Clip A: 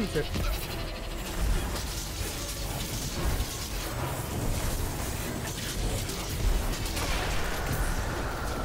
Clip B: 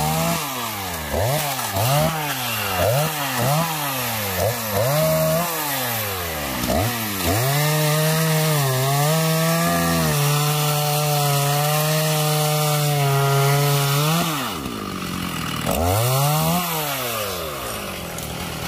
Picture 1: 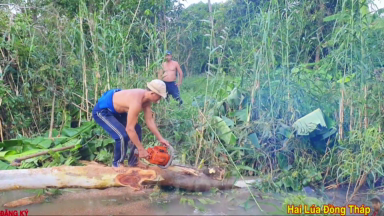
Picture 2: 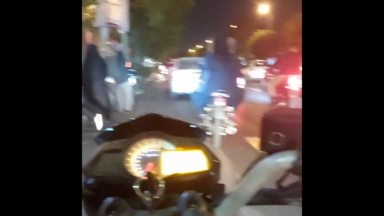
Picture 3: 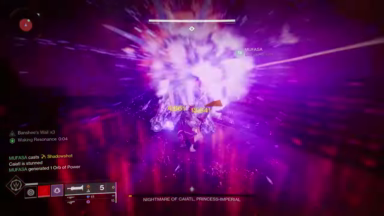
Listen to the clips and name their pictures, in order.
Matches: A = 3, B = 1